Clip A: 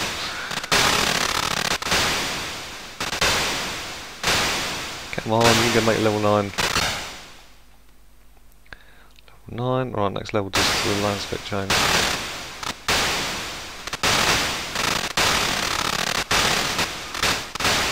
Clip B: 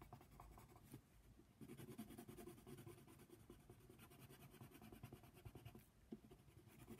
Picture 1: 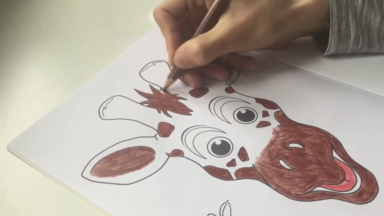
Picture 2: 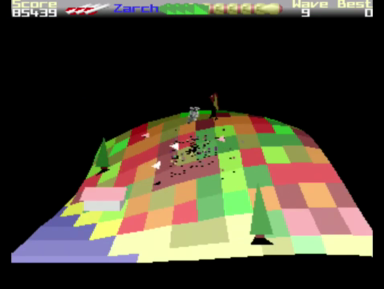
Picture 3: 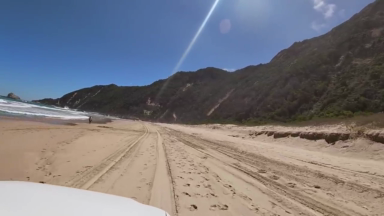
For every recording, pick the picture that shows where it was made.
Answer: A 2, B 1